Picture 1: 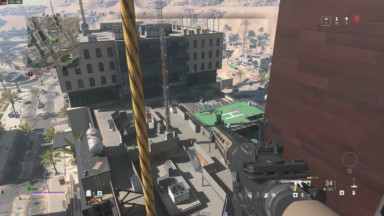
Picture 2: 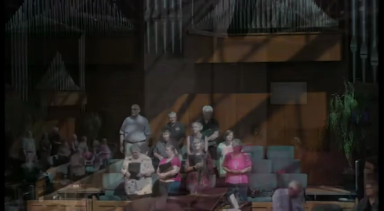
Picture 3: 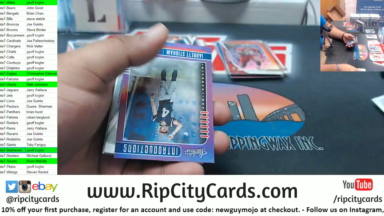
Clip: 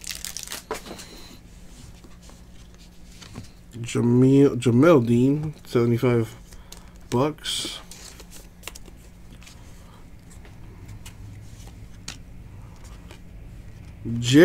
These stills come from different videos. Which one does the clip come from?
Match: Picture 3